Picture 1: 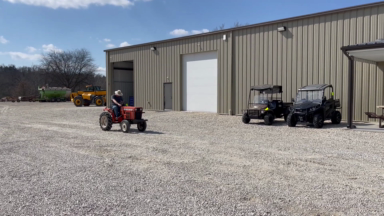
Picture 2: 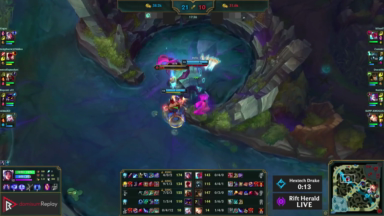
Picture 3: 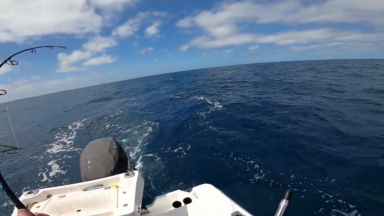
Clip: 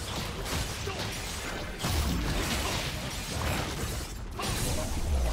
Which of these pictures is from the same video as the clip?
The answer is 2